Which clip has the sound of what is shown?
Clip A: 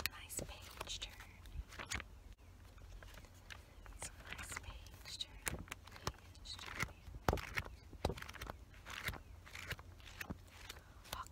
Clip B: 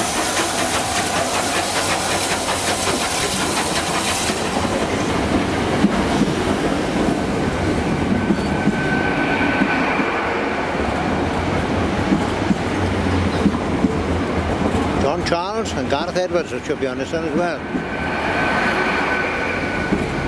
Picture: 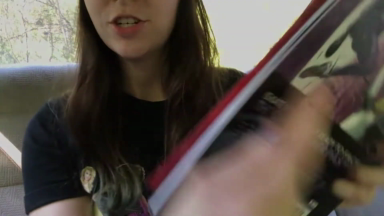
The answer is A